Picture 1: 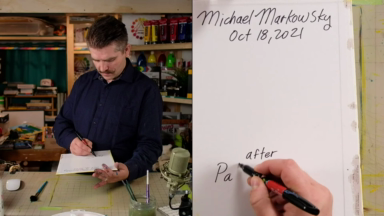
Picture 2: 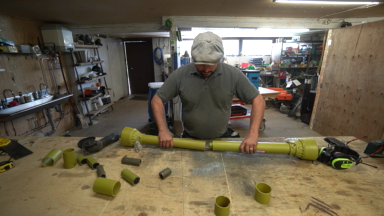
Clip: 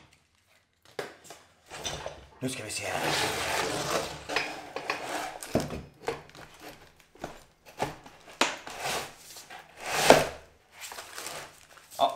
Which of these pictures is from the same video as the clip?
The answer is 2